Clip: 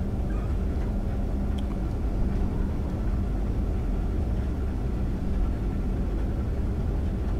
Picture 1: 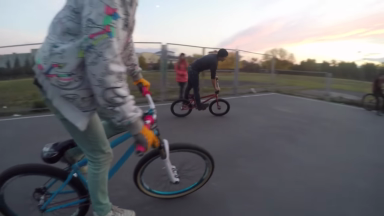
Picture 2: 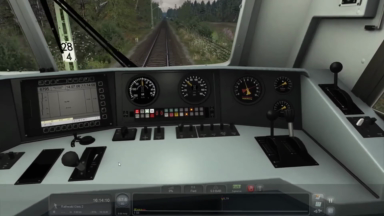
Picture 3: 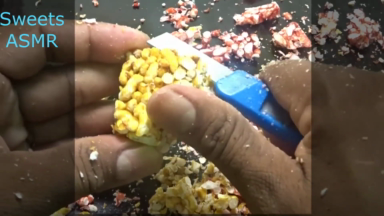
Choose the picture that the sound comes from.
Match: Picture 2